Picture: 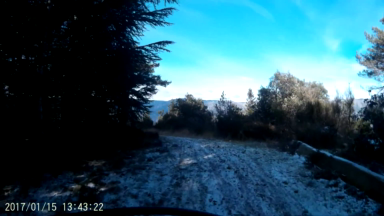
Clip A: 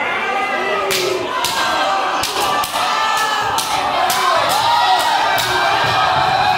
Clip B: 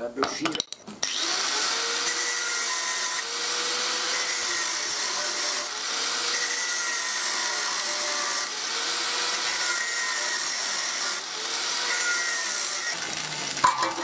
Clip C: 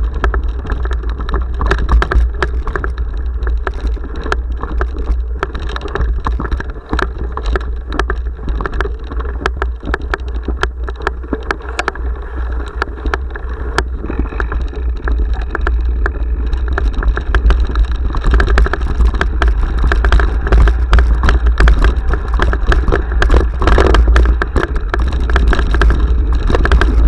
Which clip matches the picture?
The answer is C